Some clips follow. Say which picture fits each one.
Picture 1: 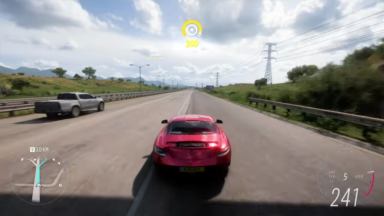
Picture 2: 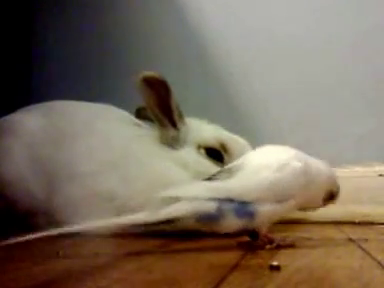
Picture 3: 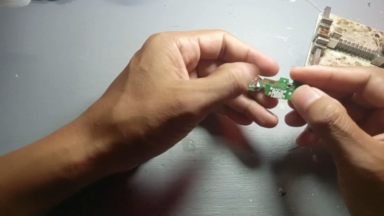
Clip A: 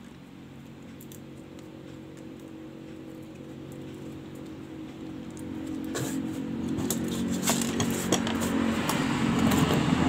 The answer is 3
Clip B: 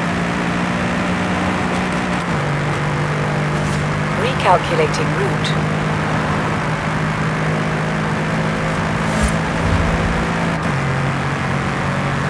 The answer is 1